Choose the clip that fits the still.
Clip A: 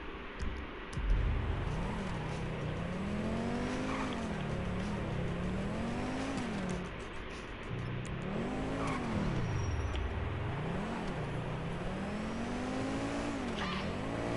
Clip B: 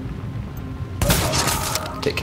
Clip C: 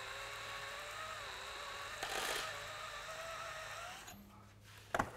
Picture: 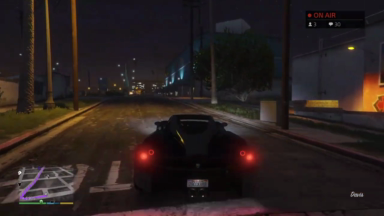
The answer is A